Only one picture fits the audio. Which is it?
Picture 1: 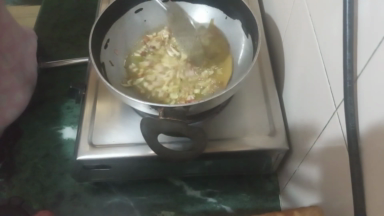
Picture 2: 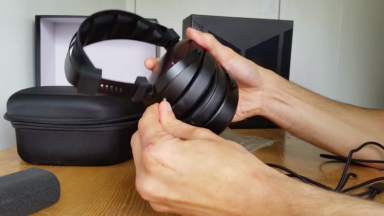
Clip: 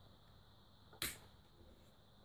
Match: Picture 2